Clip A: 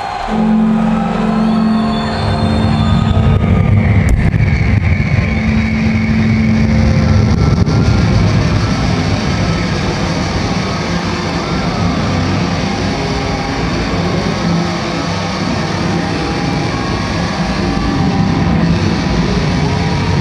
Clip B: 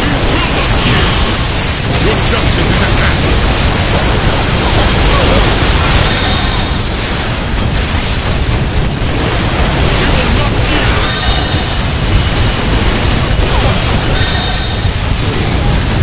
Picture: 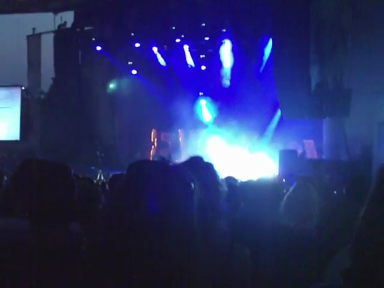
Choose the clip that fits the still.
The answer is A